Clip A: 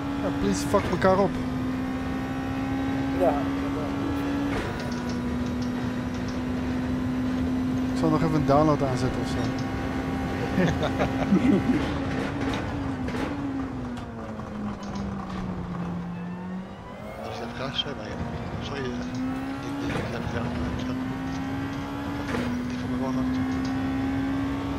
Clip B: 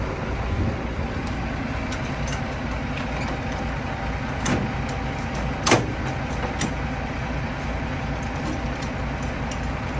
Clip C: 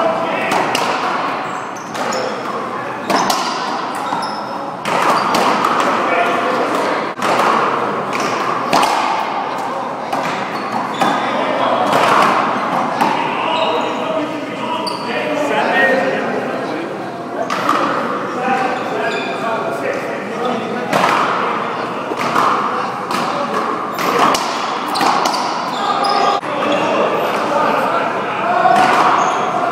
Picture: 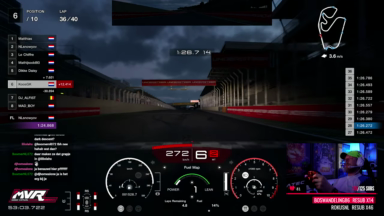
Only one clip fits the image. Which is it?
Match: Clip A